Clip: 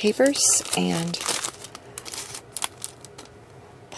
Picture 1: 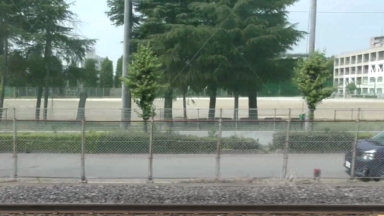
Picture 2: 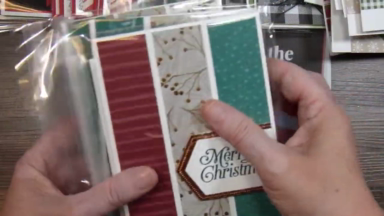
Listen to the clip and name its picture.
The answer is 2